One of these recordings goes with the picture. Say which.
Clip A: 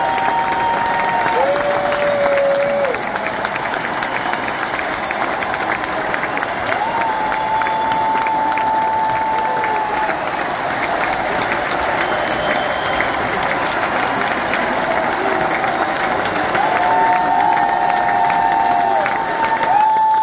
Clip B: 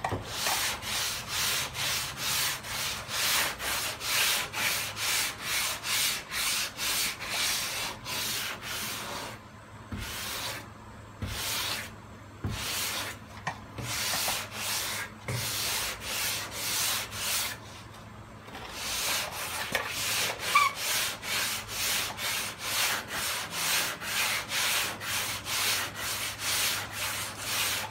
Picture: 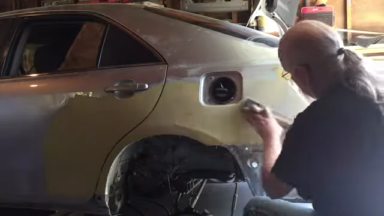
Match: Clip B